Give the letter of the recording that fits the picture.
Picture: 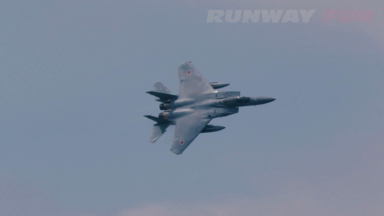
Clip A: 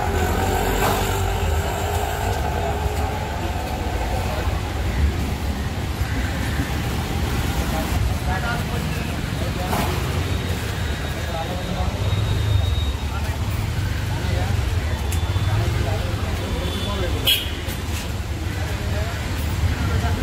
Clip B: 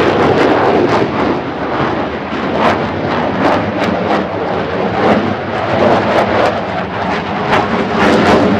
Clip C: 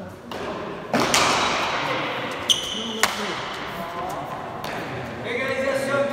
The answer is B